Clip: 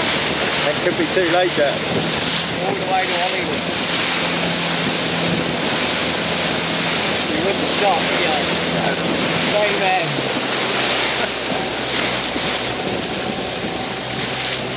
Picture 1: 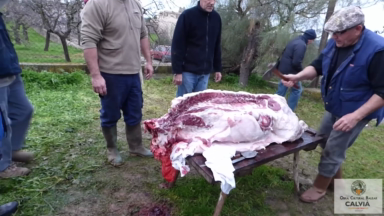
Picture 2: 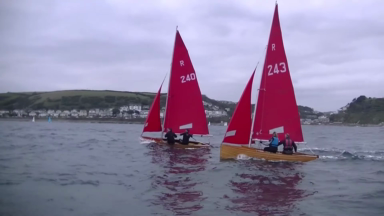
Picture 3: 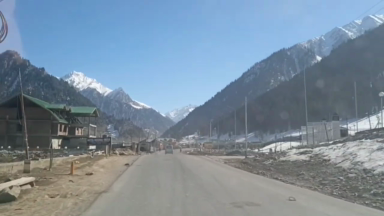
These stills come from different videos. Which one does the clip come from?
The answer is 2